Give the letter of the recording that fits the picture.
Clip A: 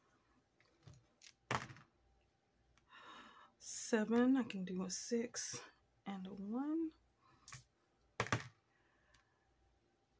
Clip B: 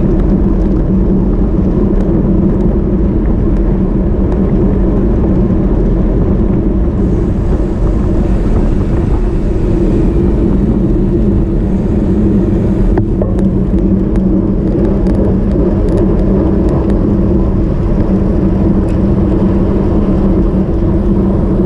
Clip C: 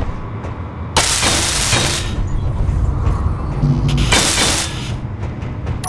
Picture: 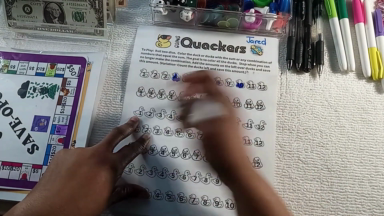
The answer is A